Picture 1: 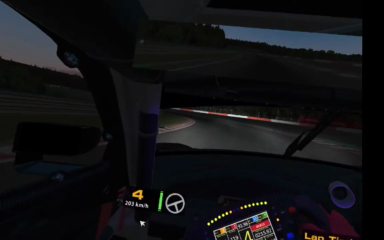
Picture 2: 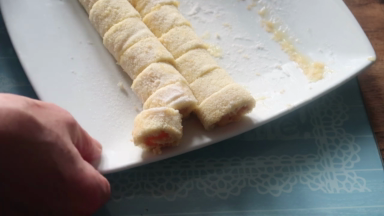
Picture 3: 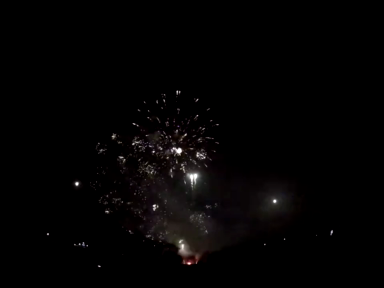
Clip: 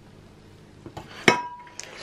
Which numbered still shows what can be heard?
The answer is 2